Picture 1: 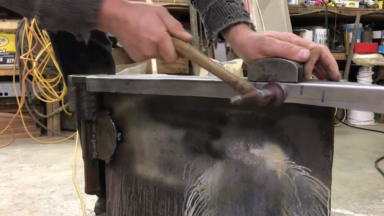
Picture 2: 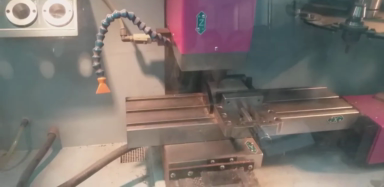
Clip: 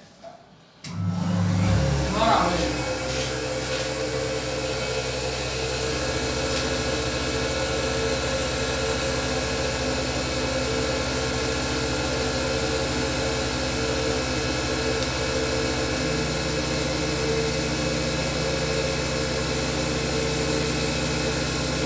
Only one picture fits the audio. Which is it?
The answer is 2